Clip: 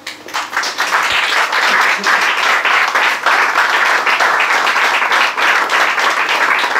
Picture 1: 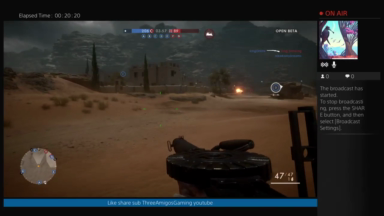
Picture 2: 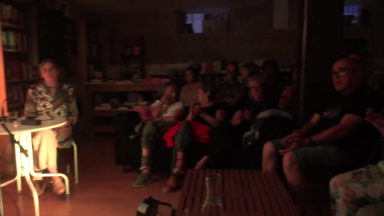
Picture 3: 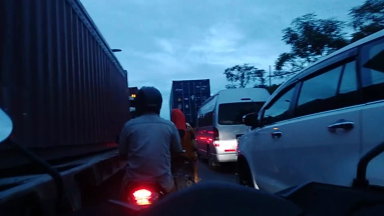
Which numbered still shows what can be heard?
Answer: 2